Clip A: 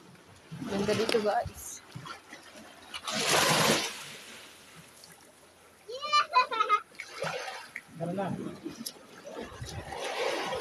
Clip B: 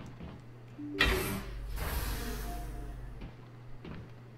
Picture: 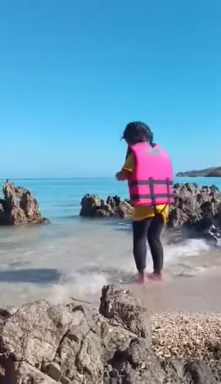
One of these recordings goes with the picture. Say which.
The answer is A